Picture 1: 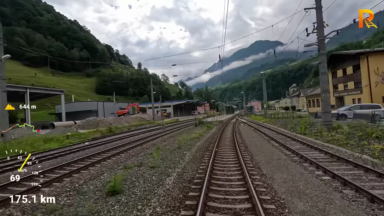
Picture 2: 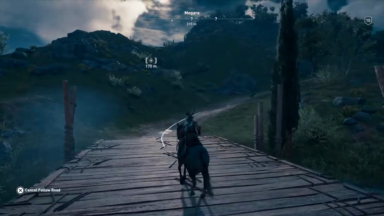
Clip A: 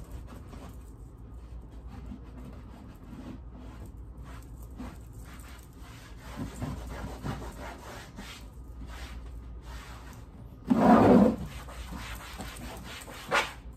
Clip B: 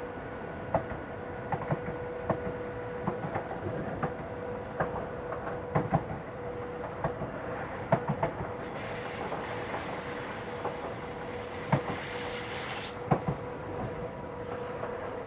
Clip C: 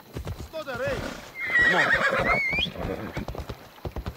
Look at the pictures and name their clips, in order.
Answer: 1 B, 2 C